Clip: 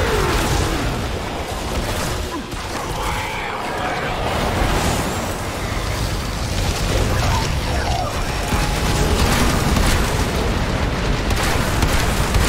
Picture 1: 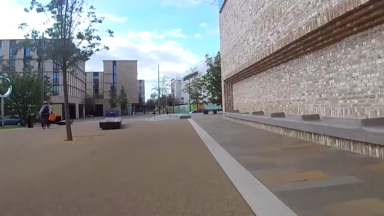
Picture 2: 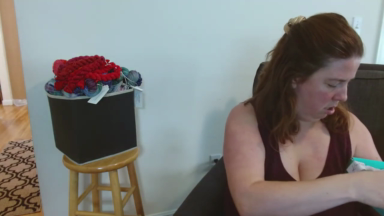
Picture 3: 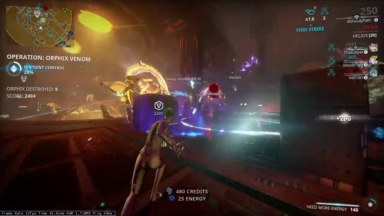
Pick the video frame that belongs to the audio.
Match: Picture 3